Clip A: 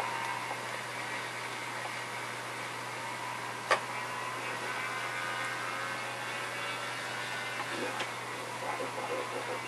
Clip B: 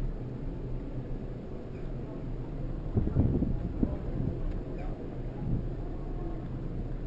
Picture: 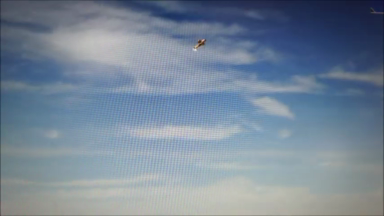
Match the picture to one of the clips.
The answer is A